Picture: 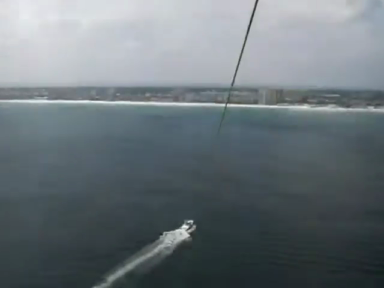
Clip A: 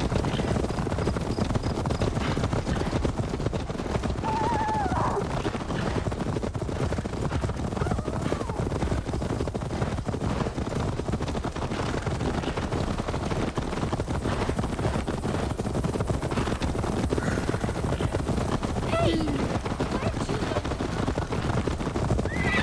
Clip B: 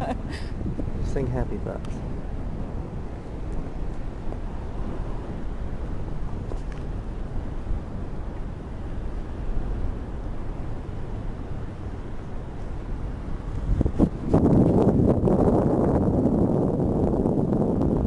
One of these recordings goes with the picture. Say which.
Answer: B